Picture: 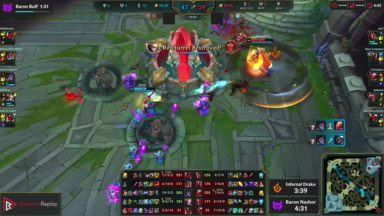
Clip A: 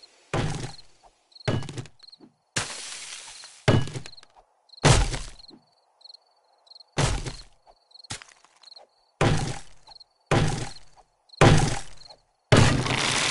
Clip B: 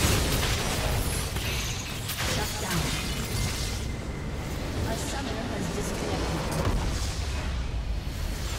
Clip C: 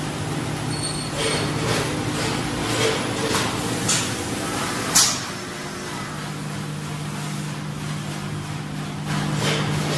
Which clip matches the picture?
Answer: B